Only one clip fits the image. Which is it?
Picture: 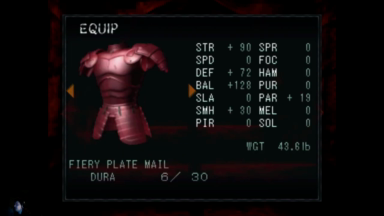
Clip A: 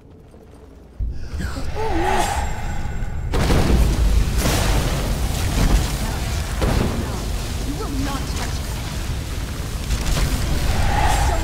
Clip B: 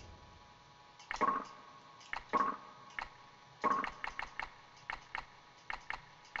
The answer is B